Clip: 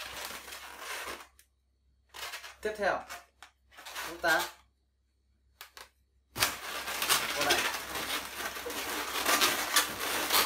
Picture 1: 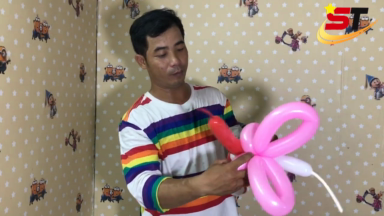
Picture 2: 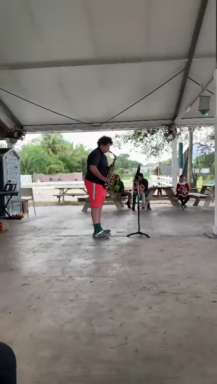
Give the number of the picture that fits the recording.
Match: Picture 1